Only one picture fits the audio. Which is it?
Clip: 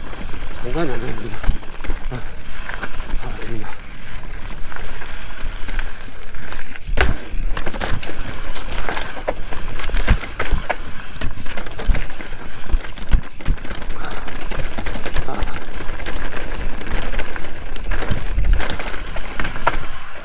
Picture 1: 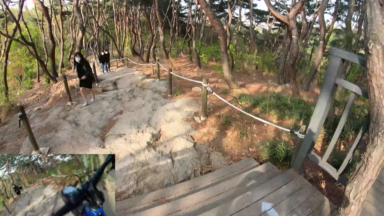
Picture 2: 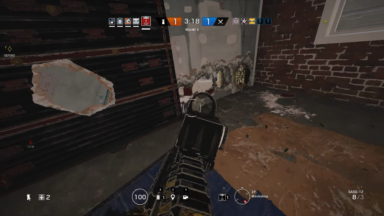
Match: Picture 1